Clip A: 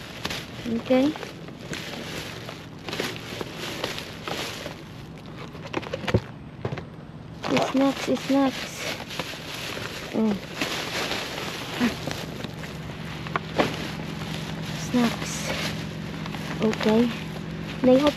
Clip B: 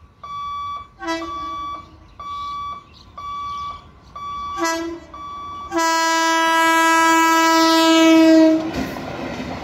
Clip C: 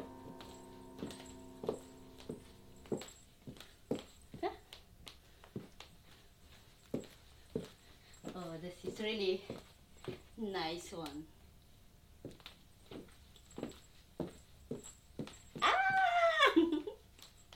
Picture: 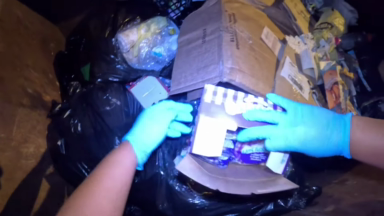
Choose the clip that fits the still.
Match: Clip A